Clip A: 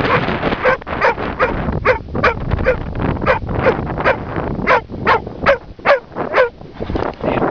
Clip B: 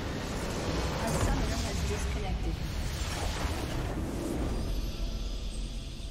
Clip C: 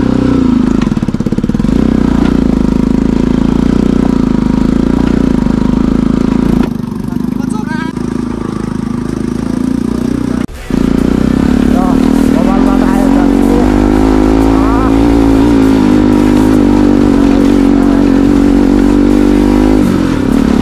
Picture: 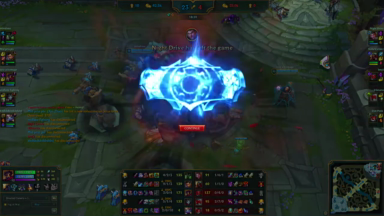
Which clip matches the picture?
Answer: B